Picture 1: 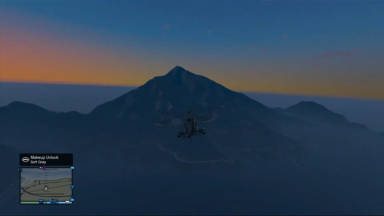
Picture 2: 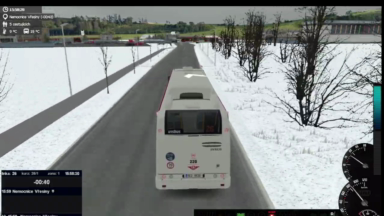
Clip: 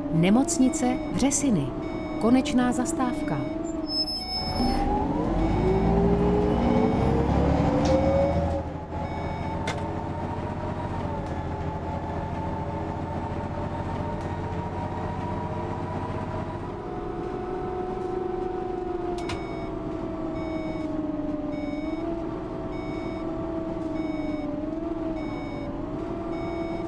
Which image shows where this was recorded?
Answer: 2